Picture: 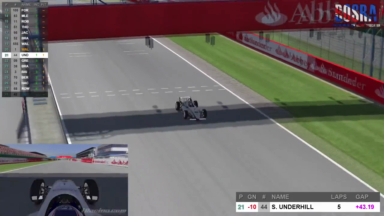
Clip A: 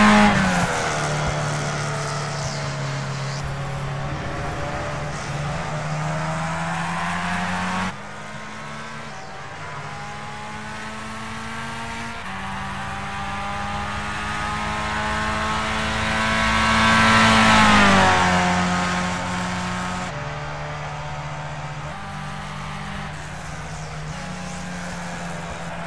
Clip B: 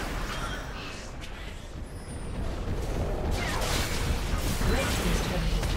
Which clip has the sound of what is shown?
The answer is A